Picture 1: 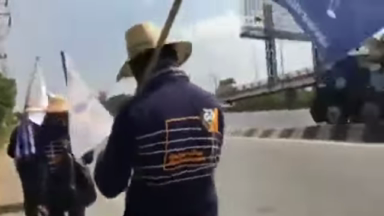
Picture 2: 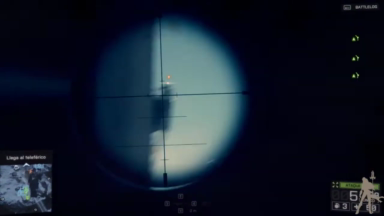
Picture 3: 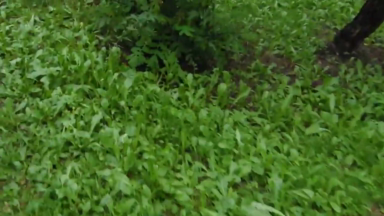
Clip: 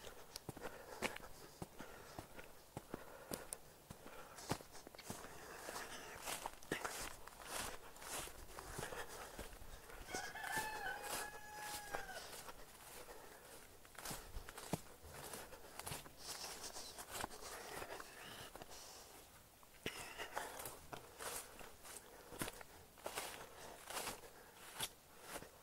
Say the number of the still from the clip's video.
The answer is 3